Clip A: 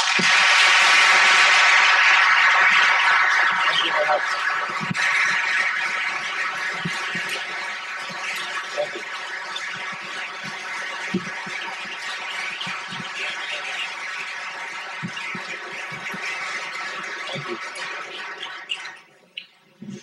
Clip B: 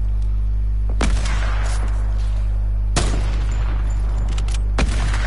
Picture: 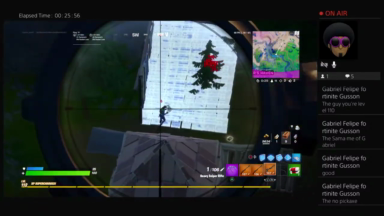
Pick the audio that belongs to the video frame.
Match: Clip B